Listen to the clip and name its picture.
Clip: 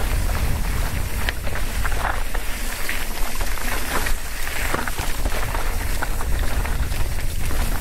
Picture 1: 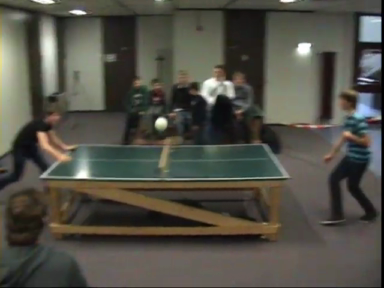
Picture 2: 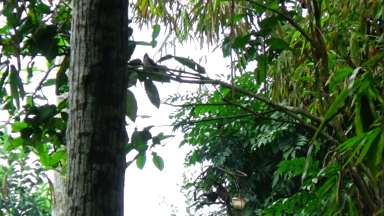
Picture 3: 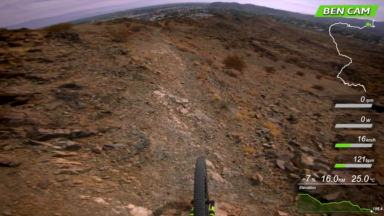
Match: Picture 3